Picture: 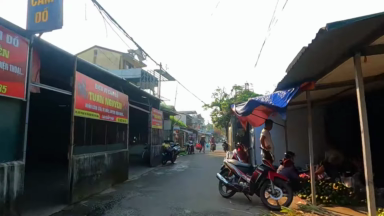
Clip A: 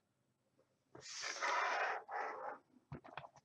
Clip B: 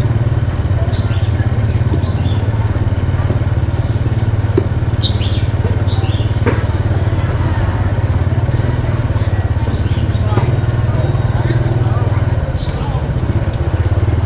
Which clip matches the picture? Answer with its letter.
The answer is B